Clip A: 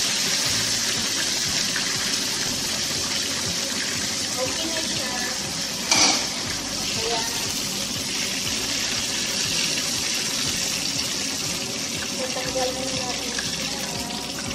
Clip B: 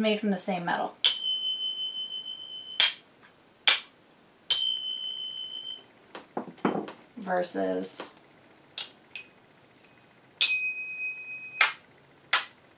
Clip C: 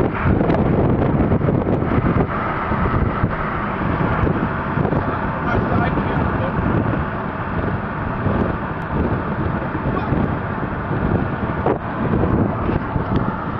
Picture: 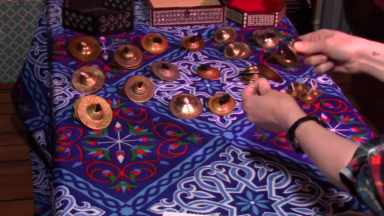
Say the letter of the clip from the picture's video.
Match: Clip B